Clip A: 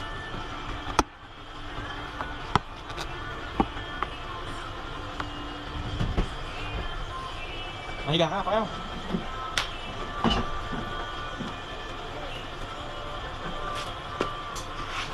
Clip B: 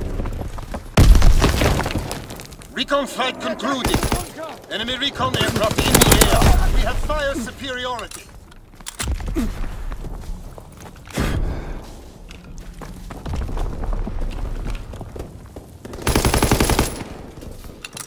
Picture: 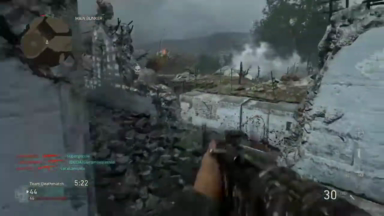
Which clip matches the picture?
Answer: B